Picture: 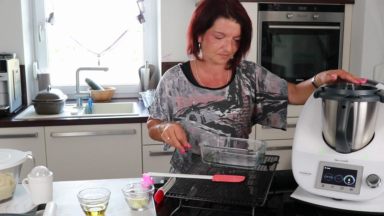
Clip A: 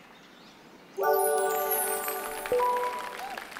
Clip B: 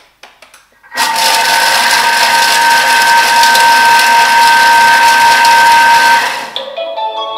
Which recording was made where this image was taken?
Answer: B